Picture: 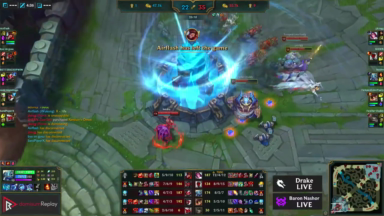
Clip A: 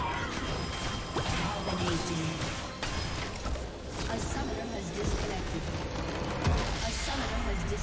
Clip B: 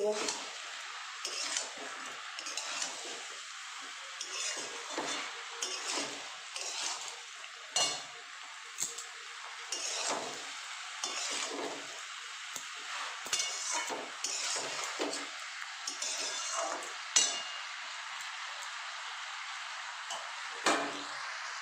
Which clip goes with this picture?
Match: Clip A